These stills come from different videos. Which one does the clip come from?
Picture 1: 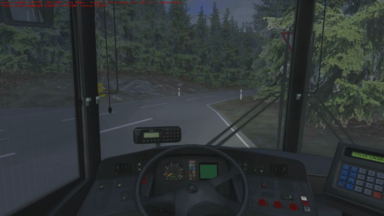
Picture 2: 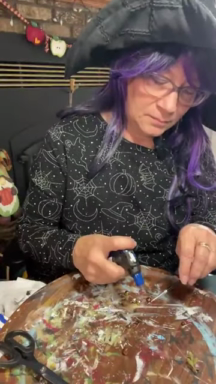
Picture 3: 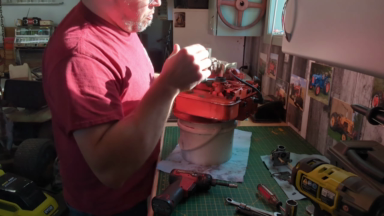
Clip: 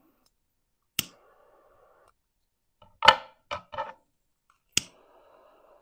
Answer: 2